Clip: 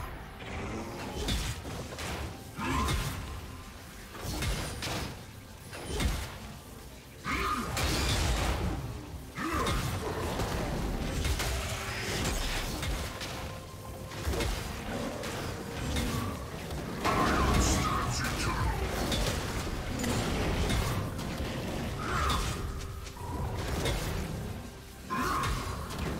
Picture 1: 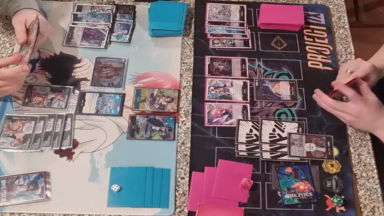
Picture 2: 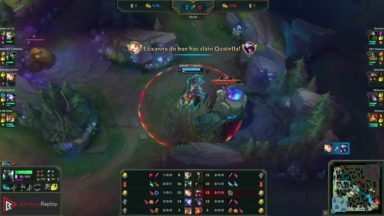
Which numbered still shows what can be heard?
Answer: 2